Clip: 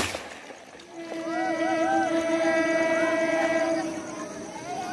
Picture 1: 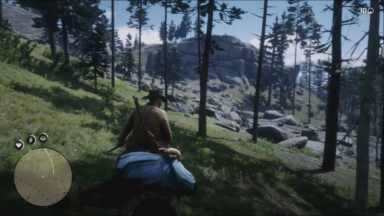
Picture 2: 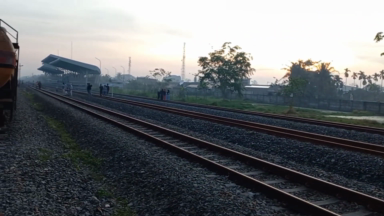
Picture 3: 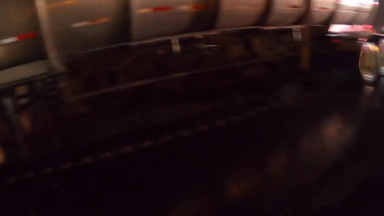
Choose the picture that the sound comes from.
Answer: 2